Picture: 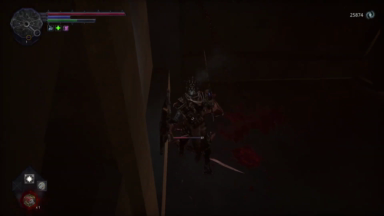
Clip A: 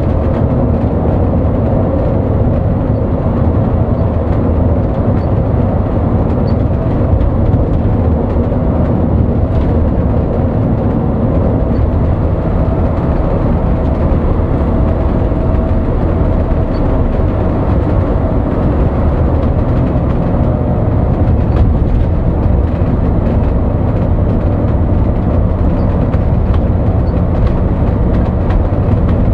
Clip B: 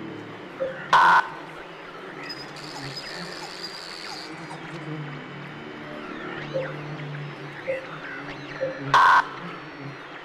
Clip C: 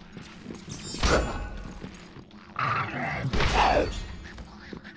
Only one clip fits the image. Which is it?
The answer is C